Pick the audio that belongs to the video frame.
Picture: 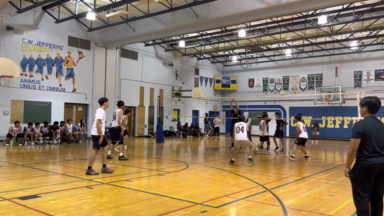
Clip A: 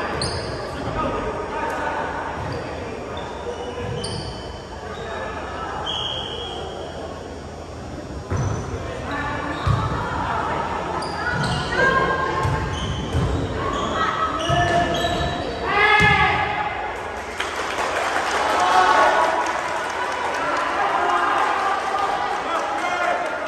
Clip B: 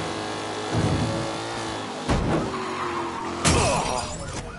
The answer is A